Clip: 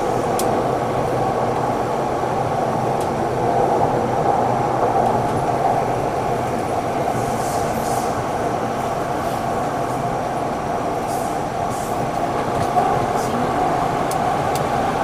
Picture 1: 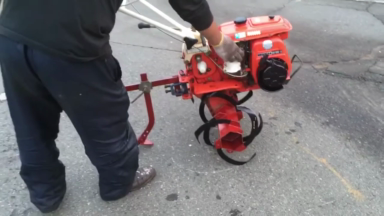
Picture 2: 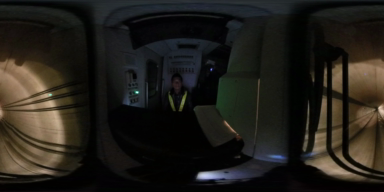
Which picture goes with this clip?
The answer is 2